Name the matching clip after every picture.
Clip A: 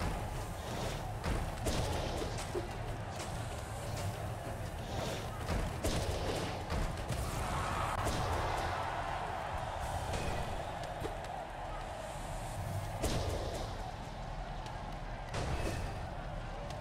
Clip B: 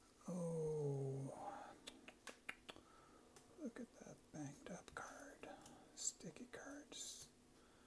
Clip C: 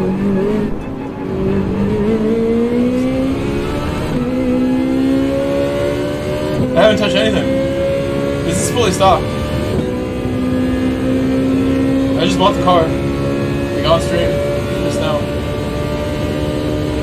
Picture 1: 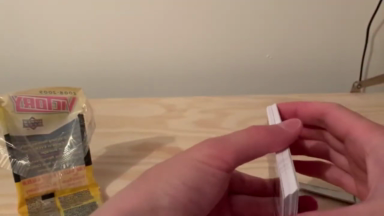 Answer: B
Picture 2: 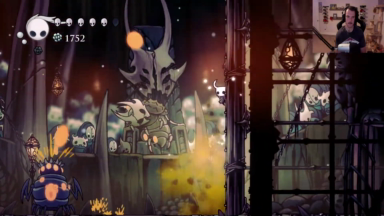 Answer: A